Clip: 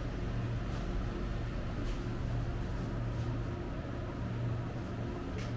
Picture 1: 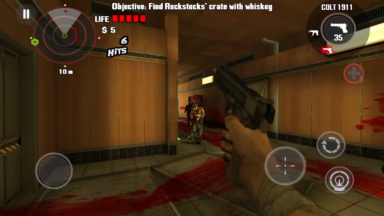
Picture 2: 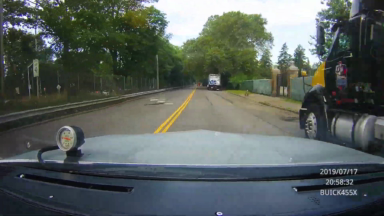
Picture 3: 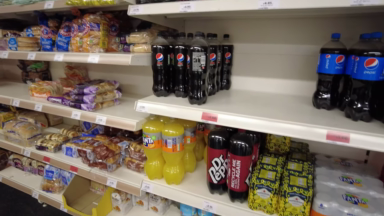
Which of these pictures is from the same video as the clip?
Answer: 3